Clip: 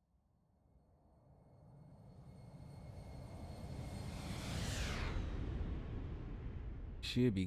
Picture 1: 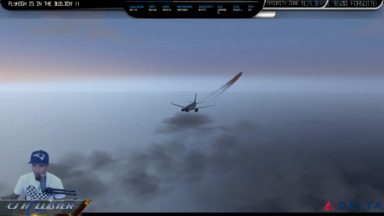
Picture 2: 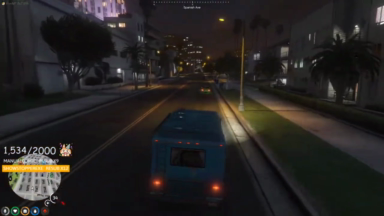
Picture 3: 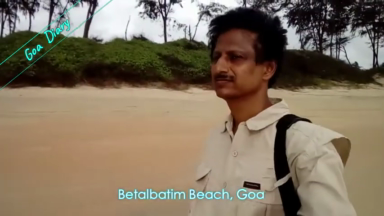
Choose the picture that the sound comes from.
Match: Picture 1